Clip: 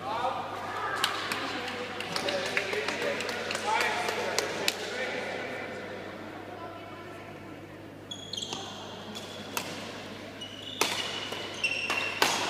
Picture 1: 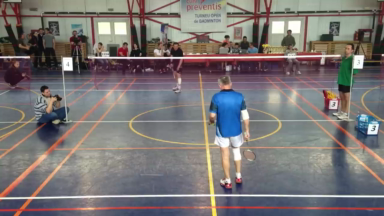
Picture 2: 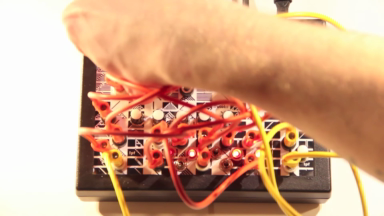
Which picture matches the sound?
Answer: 1